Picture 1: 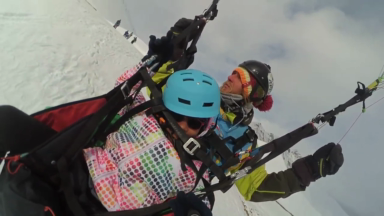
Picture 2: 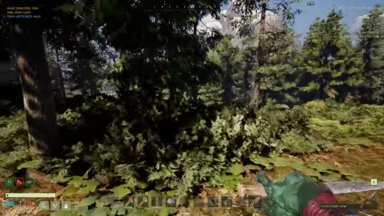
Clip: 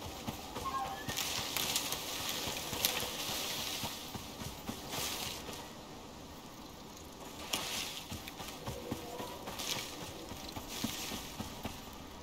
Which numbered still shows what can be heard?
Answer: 2